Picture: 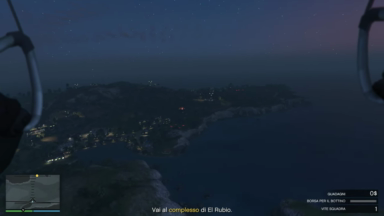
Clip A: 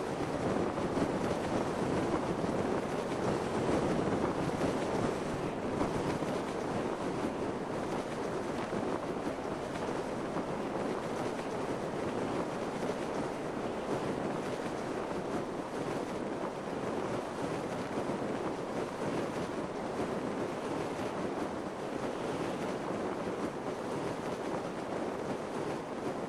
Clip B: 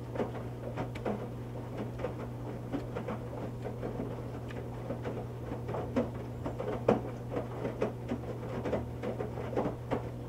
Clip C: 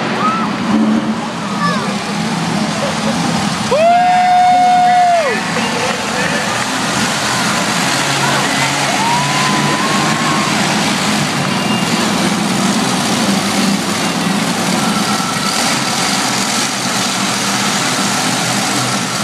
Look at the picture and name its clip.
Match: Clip A